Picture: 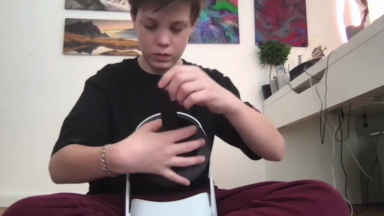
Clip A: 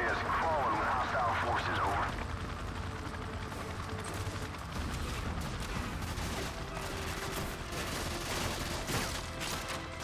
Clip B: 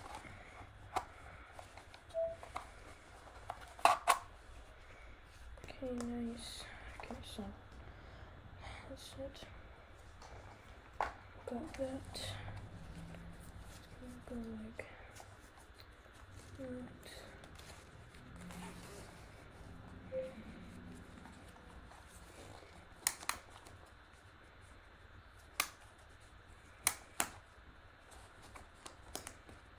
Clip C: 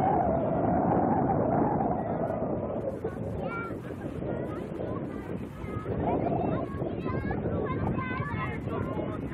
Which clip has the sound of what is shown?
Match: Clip B